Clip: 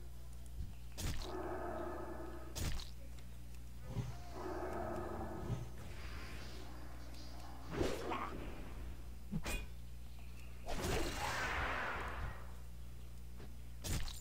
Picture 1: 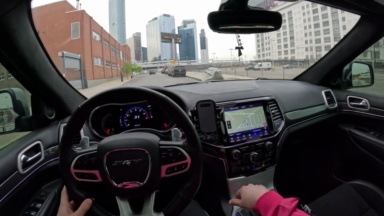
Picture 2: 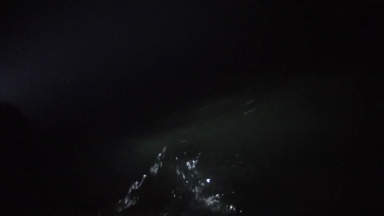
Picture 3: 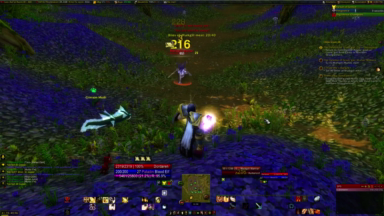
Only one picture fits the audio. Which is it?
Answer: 3